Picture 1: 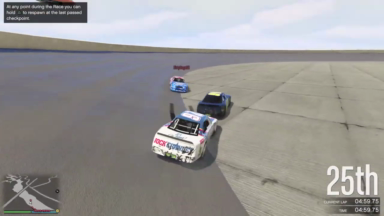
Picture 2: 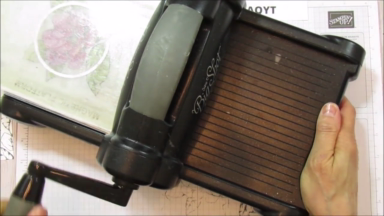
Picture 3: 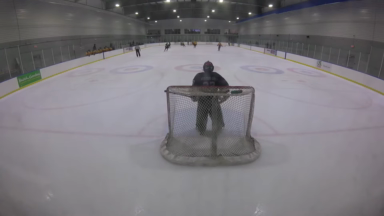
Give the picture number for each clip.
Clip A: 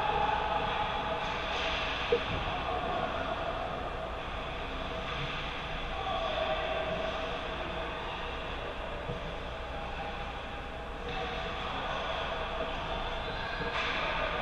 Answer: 3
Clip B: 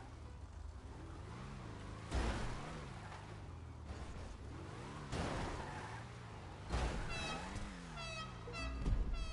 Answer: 1